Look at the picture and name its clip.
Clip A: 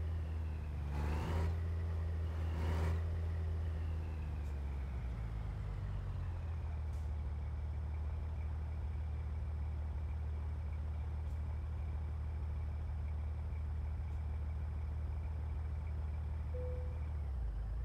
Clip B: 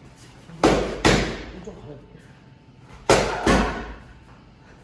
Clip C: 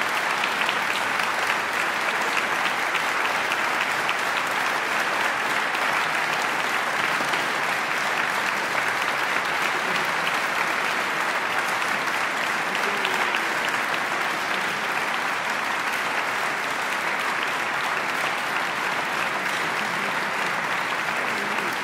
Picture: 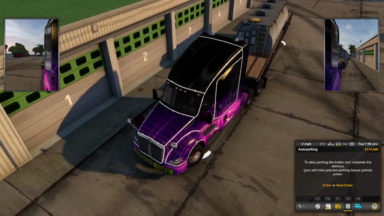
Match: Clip A